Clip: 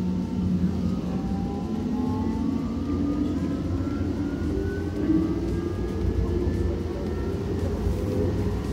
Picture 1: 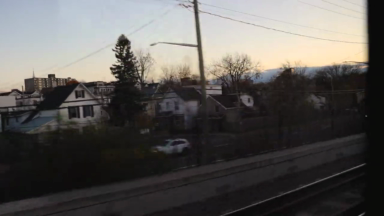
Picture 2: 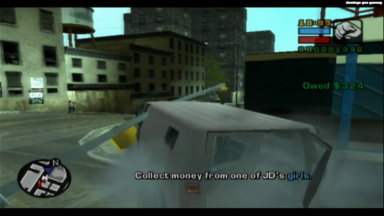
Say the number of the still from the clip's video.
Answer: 1